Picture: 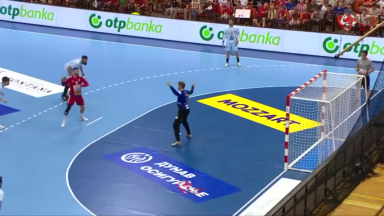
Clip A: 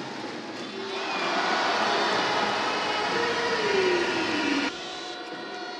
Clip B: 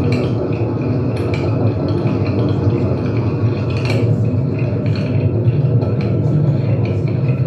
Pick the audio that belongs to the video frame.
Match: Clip A